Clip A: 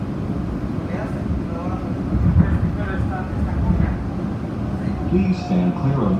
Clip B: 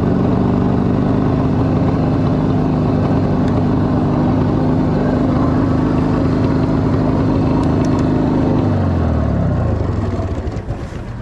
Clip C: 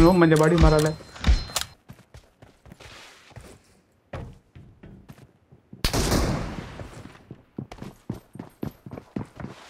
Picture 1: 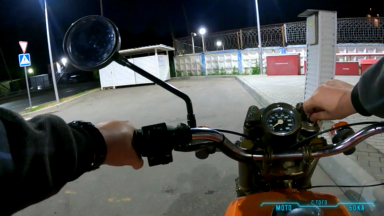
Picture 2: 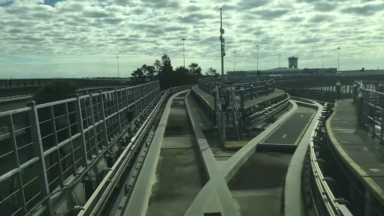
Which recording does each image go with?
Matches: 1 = B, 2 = A